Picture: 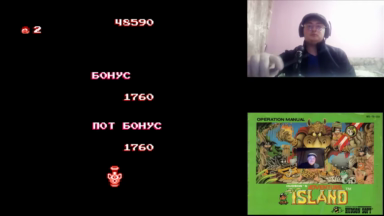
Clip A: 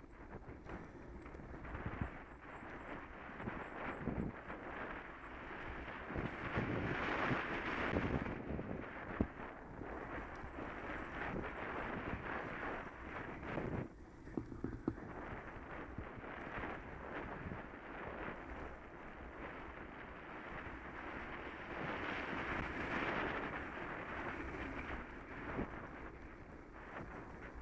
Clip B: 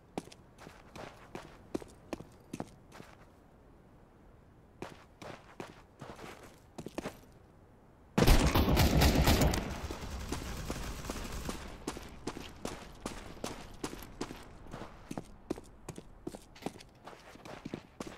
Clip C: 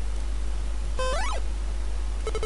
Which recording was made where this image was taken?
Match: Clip C